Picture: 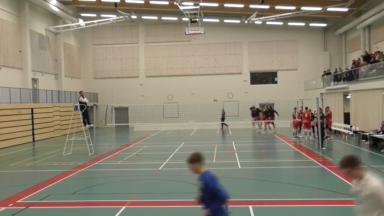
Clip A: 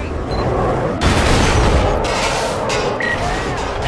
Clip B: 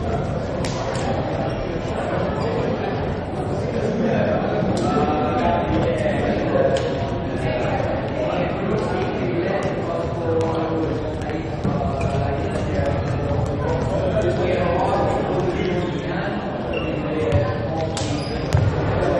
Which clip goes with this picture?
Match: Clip B